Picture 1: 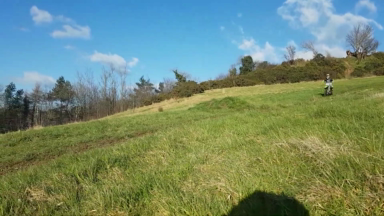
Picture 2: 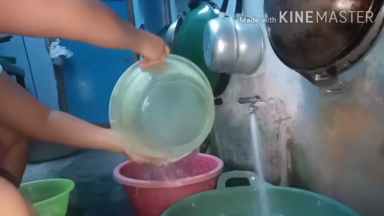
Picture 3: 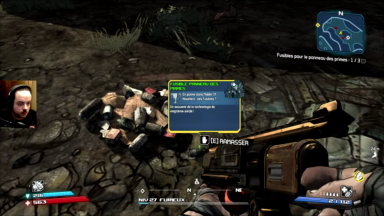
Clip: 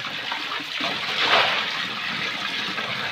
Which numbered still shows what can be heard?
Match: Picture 2